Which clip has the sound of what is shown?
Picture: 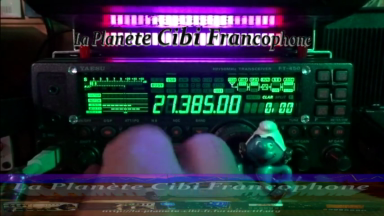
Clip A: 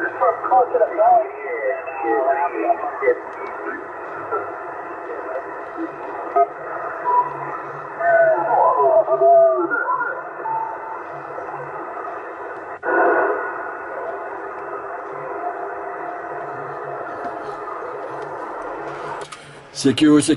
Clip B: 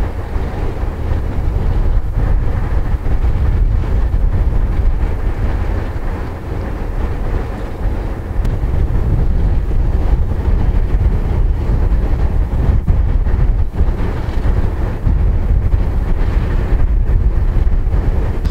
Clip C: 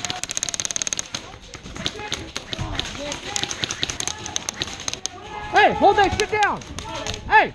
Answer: A